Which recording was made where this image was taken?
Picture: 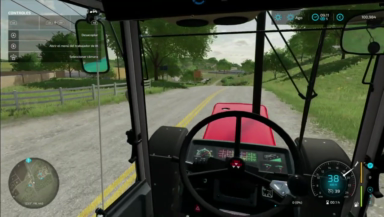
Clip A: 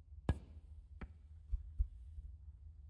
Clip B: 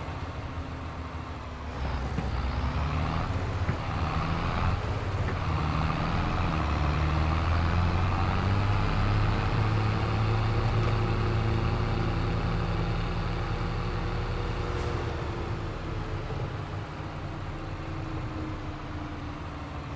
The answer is B